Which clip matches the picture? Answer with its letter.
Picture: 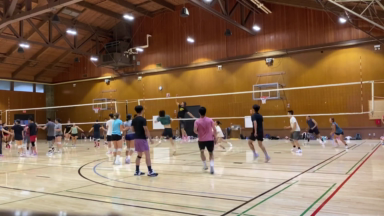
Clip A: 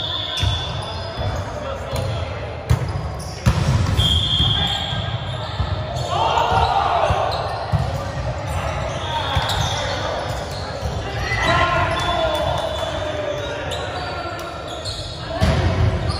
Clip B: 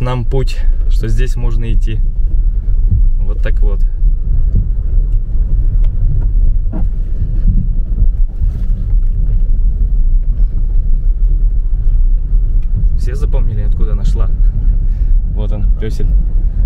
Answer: A